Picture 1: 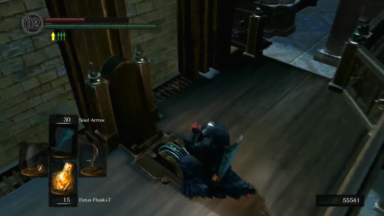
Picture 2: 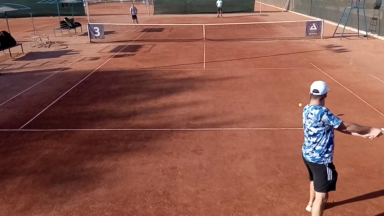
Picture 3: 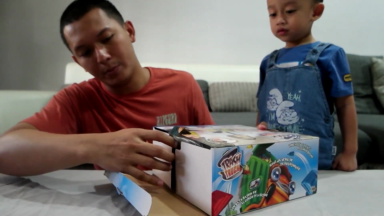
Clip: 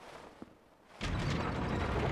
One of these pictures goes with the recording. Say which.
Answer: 1